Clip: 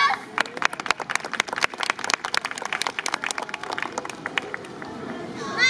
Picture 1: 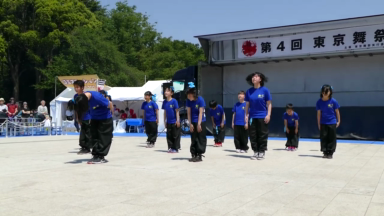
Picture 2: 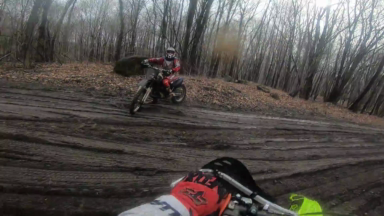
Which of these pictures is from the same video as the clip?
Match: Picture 1